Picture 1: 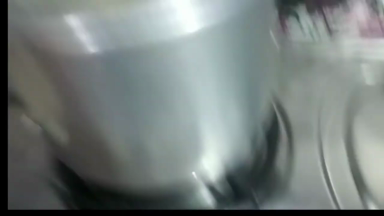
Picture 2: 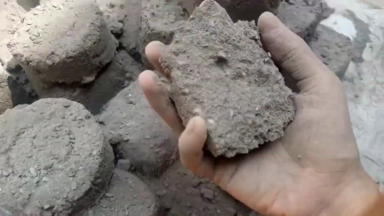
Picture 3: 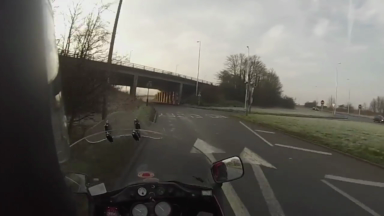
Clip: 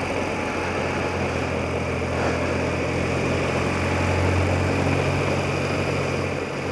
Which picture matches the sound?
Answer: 3